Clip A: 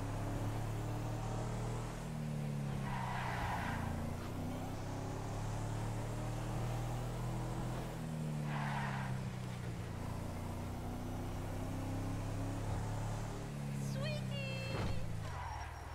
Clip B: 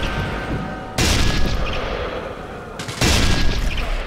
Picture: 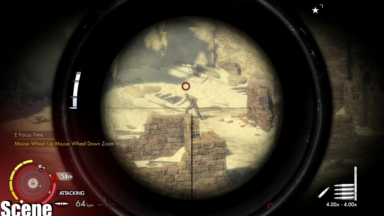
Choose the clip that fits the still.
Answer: B